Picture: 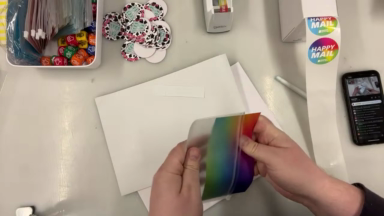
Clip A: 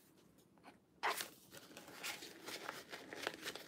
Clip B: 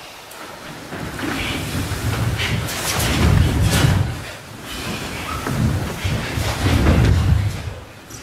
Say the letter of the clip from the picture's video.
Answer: A